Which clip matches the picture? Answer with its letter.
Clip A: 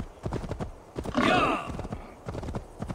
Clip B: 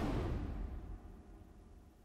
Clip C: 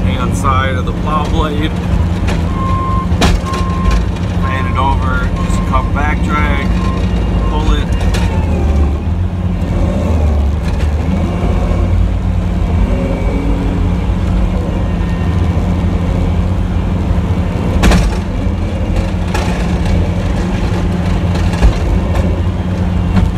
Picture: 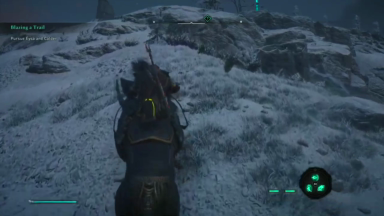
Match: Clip A